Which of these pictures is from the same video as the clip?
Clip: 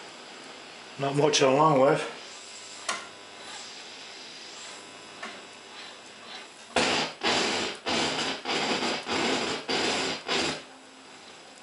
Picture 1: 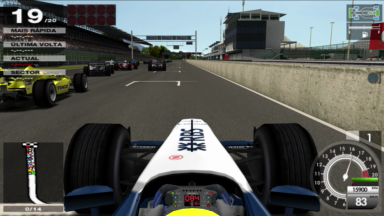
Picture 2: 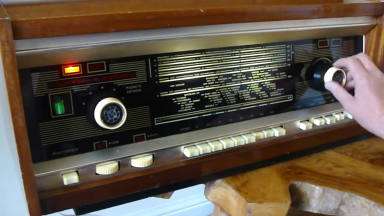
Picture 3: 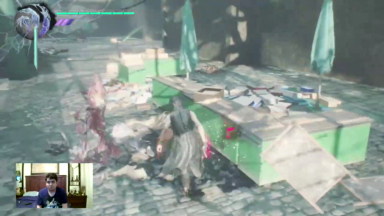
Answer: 2